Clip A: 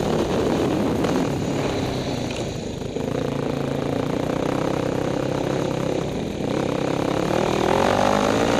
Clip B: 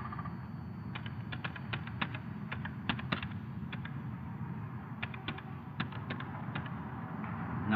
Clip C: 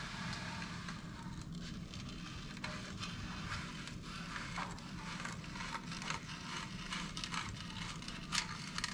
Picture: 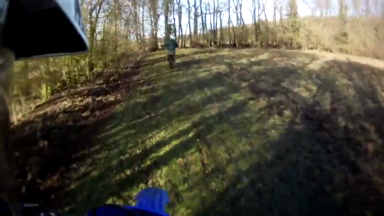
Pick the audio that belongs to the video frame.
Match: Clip A